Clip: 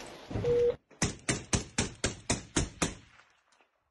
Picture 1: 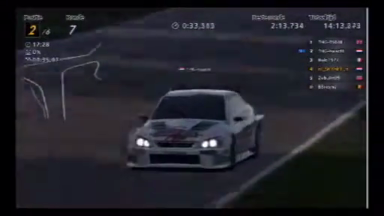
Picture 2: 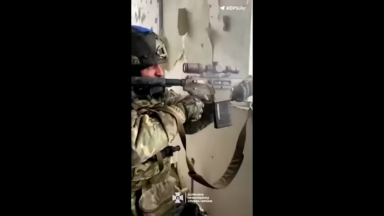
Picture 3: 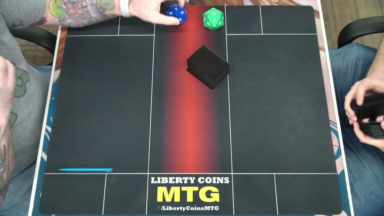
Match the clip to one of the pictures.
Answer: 2